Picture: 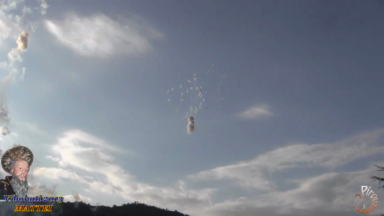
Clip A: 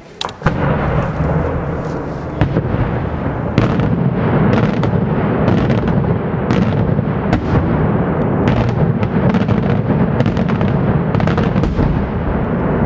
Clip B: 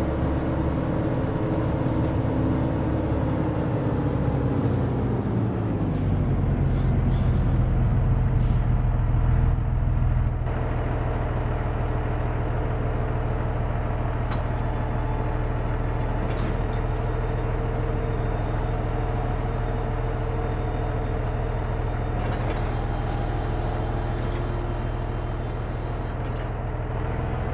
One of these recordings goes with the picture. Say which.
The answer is A